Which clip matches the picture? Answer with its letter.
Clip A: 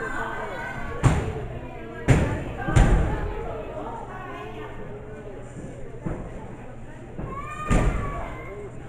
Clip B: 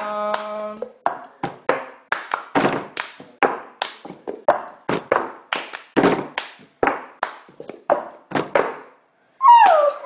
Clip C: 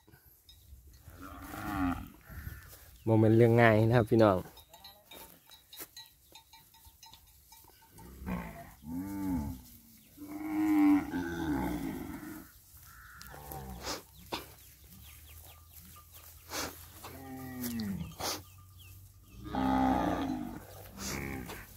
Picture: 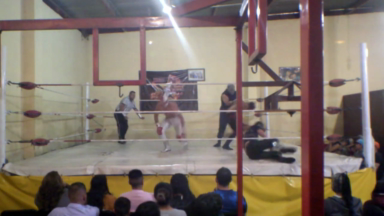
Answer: A